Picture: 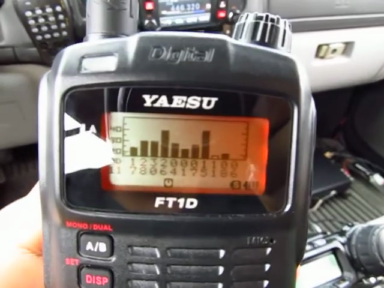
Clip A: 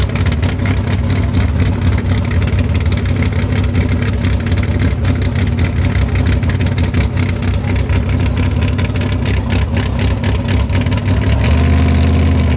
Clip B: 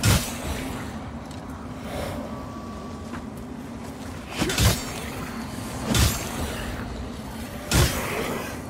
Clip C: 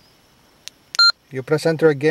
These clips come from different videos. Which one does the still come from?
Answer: C